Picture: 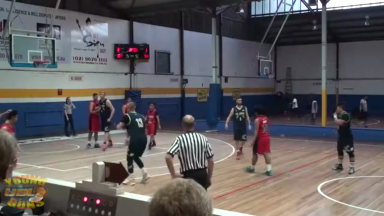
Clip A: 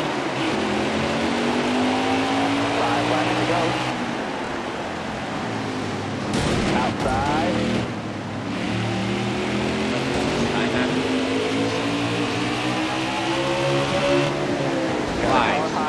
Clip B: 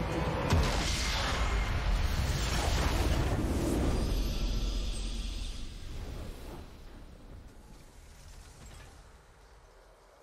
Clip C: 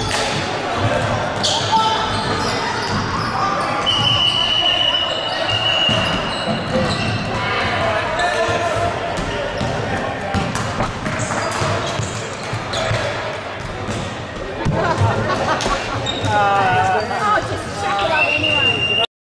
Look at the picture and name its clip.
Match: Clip C